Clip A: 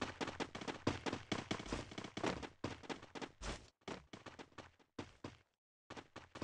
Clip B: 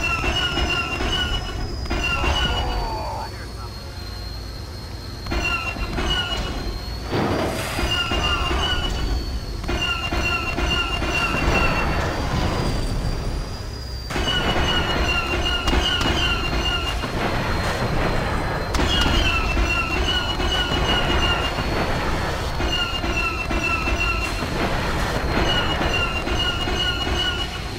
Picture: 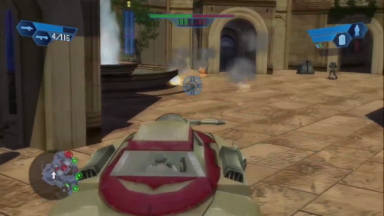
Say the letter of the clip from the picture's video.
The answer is B